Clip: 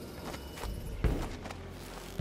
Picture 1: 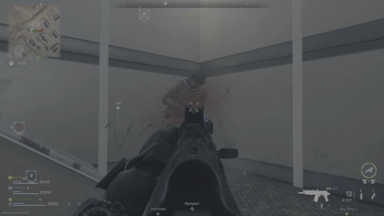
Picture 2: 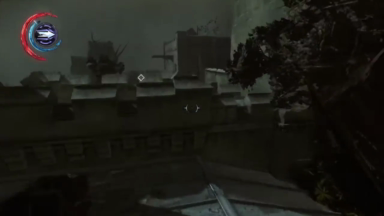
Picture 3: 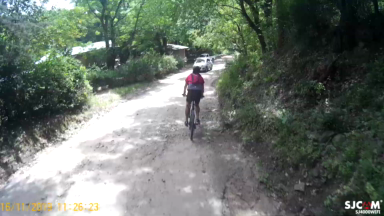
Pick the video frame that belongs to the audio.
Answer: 2